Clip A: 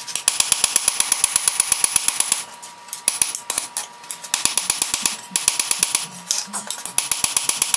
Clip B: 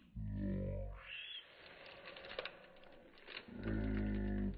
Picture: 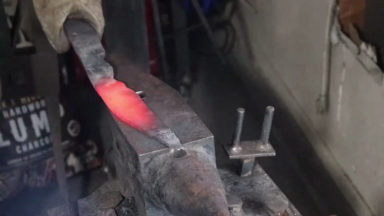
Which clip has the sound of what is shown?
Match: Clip A